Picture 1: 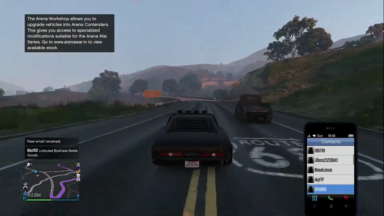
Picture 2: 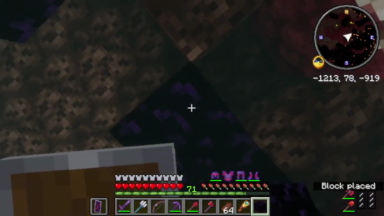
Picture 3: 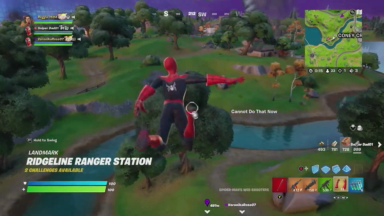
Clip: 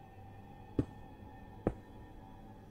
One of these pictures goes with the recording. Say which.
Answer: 2